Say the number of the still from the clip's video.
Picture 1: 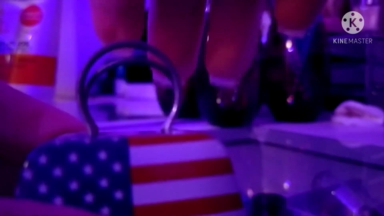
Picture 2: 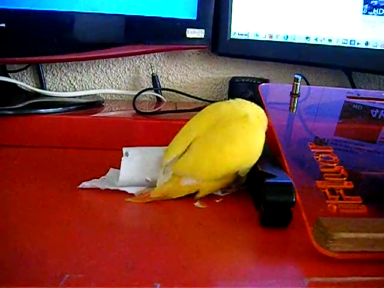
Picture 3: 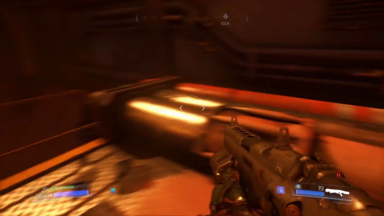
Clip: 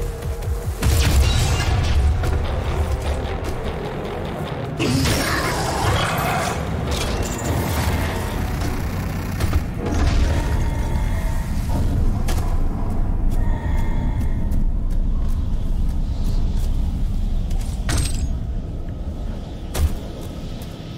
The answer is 3